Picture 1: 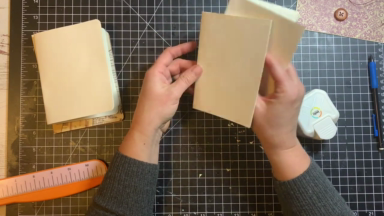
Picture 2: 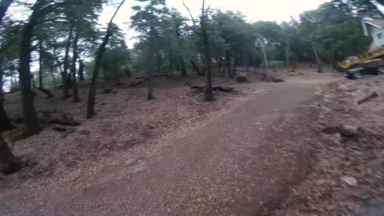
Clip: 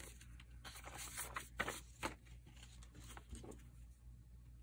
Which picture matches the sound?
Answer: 1